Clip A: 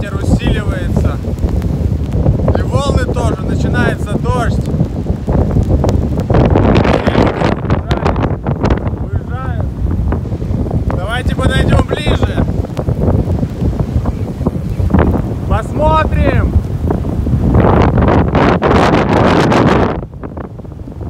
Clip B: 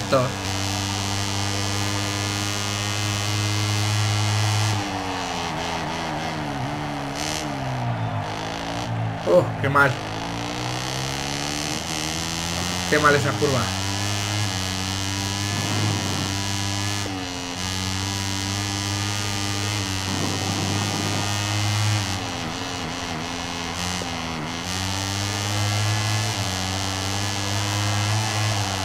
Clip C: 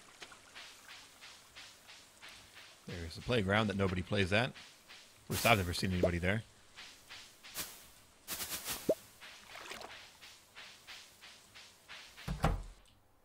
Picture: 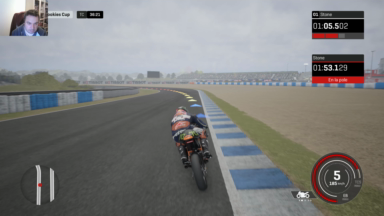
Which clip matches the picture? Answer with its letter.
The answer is B